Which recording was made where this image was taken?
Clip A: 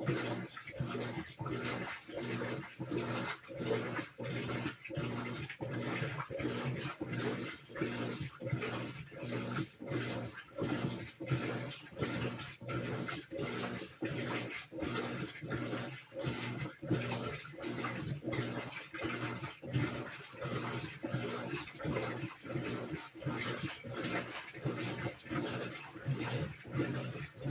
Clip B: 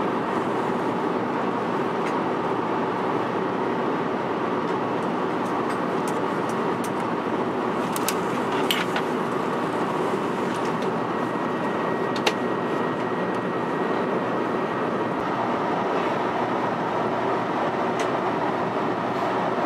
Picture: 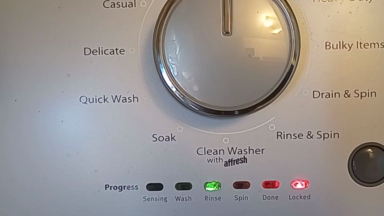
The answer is A